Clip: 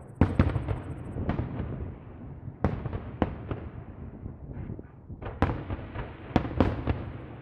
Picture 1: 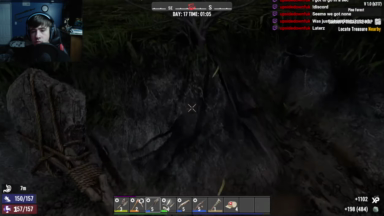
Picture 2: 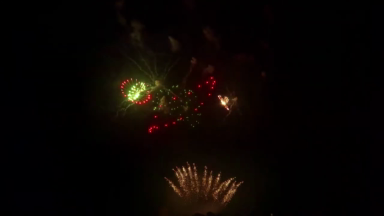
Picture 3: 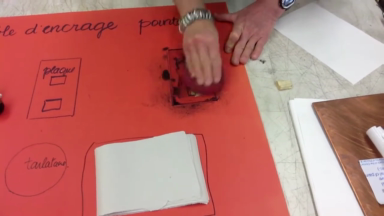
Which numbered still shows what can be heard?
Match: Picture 2